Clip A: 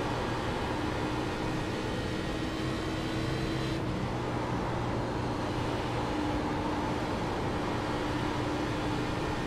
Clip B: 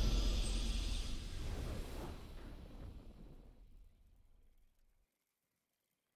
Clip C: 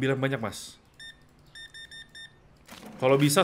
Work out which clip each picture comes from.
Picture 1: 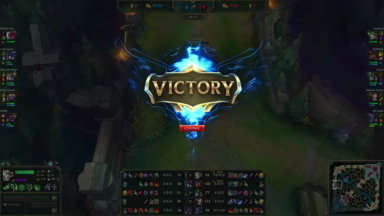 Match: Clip B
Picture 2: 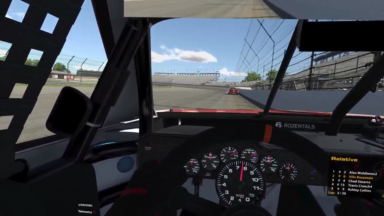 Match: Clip A